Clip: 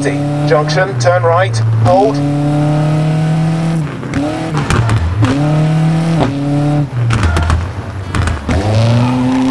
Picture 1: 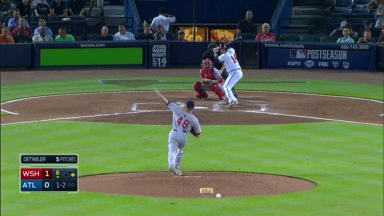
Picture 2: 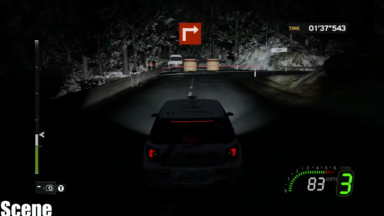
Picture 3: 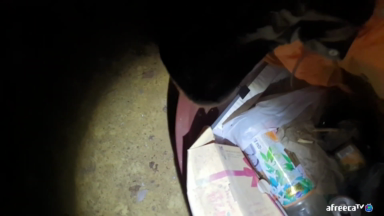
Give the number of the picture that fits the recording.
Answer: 2